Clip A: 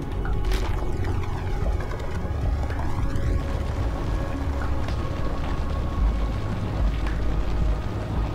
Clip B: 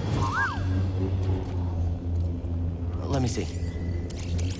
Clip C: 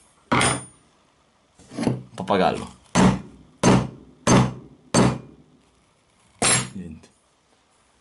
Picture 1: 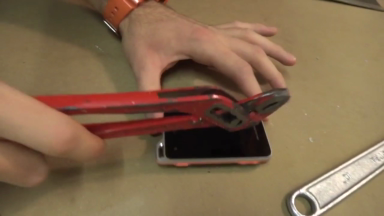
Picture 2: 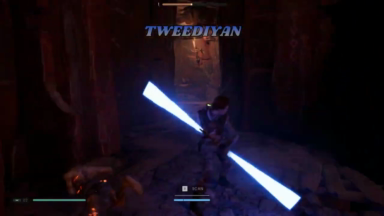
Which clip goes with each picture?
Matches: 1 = C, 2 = B